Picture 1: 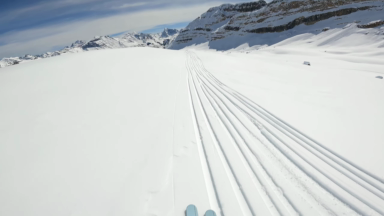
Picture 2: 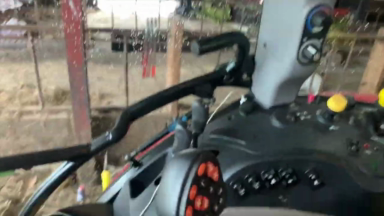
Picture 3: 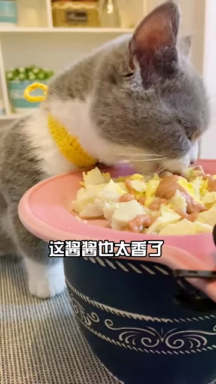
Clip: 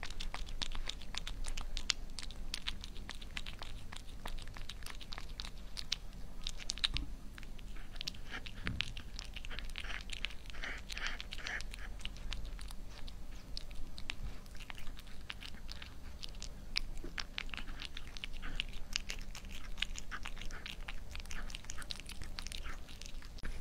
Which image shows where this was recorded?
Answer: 3